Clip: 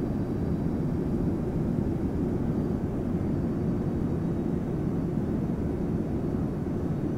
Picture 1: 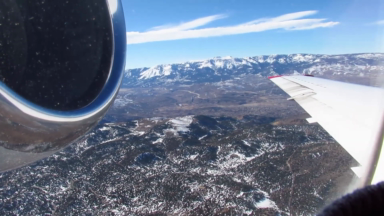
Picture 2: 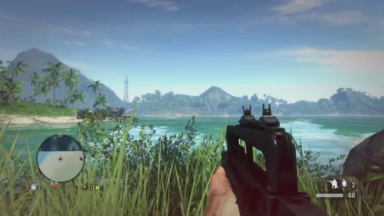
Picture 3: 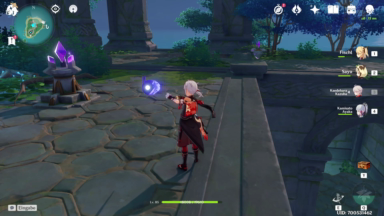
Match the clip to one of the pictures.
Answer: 1